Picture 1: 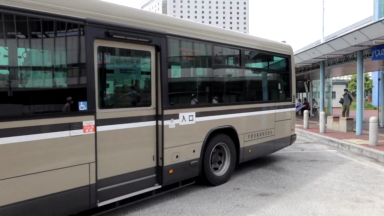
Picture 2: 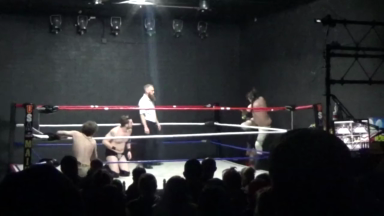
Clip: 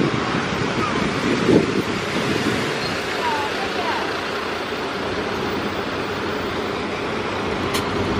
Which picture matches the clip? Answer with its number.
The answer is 1